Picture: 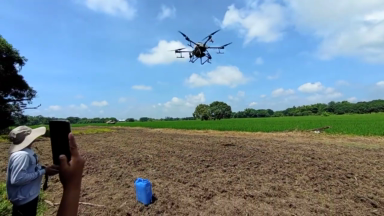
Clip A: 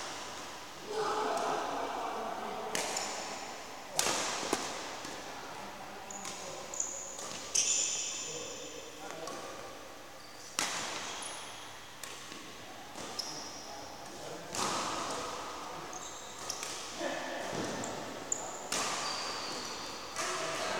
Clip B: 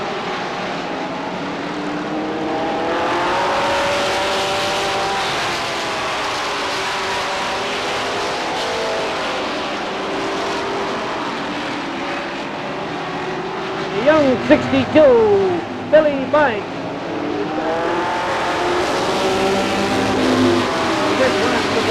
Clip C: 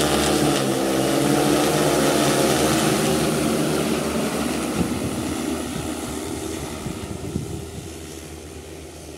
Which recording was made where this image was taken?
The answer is C